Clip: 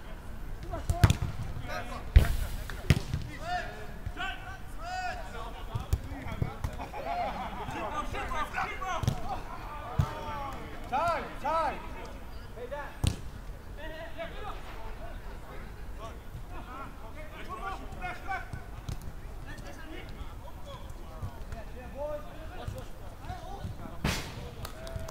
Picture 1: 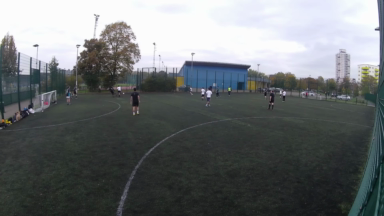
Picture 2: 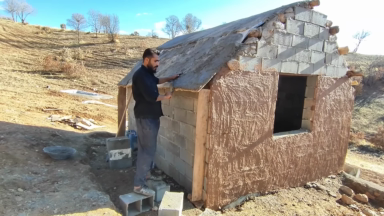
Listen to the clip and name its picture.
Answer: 1